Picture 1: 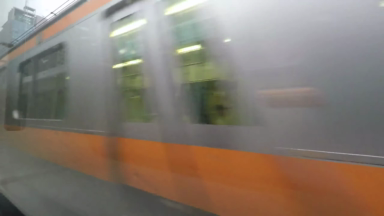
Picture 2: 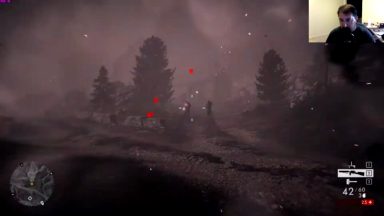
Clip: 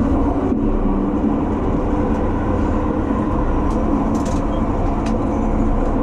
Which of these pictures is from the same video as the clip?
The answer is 1